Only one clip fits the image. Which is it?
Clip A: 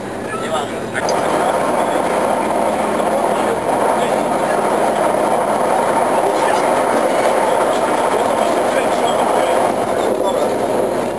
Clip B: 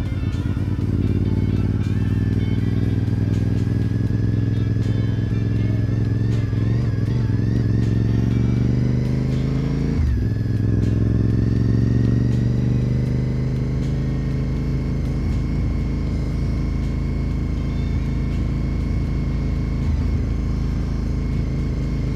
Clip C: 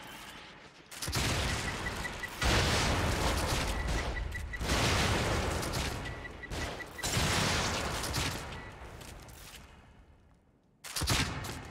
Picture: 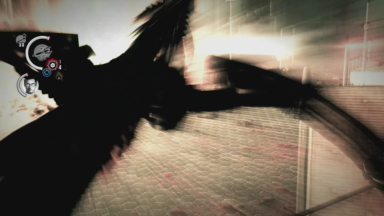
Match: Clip C